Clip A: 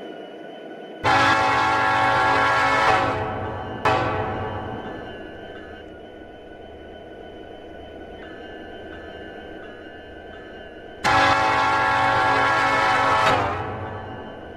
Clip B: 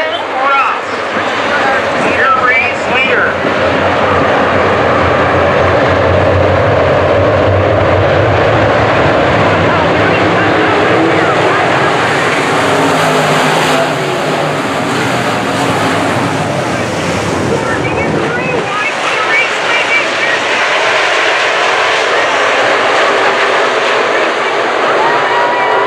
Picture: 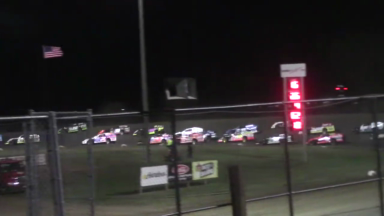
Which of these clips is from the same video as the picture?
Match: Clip B